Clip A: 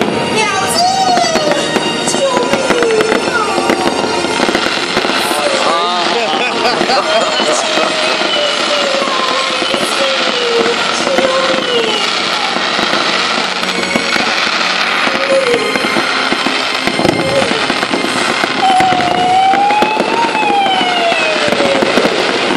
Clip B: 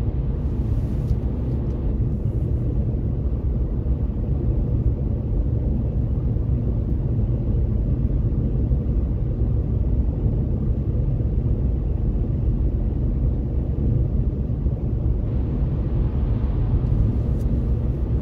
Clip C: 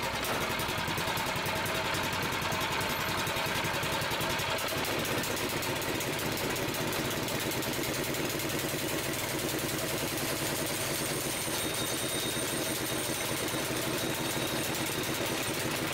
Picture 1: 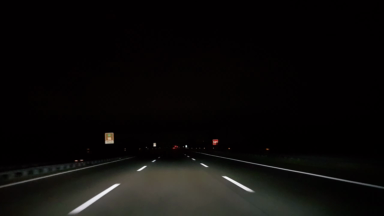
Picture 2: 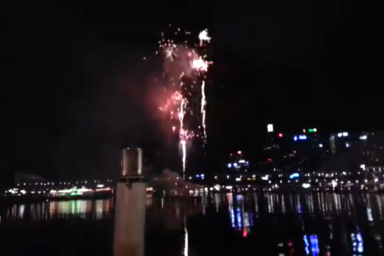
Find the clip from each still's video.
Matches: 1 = B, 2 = A